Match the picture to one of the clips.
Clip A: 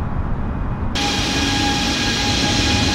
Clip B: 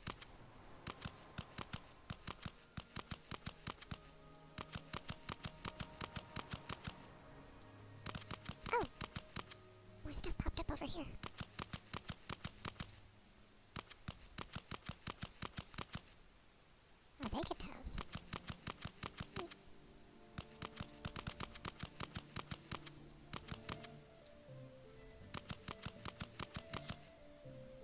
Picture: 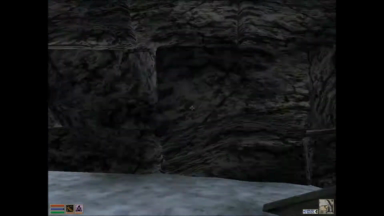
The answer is B